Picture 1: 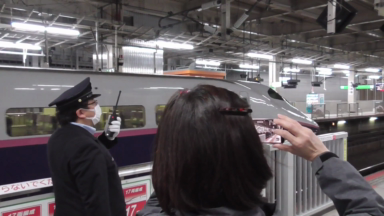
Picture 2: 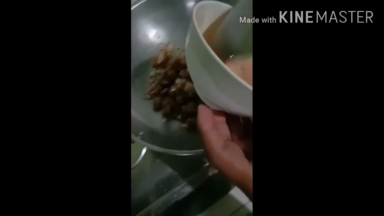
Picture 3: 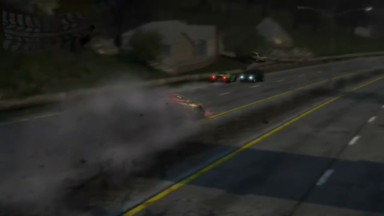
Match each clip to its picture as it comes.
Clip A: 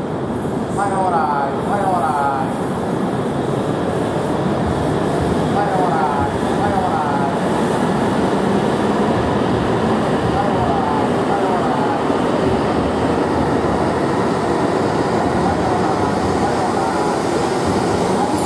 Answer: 1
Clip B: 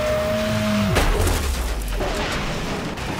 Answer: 3